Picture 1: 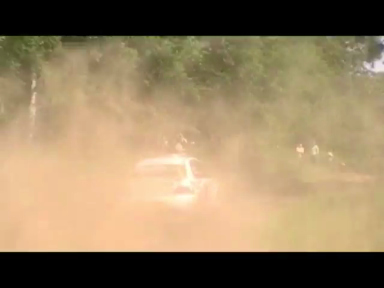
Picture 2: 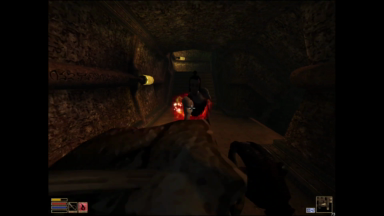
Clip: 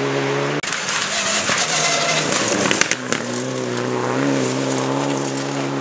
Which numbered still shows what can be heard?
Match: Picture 1